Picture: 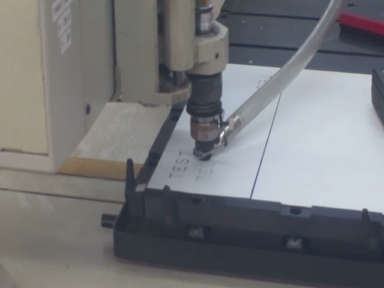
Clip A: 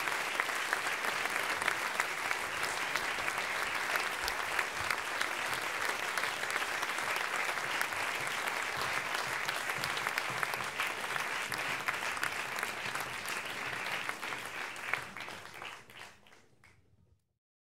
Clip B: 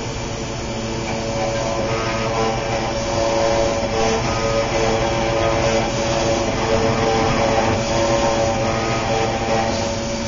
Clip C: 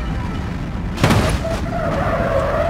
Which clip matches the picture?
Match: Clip B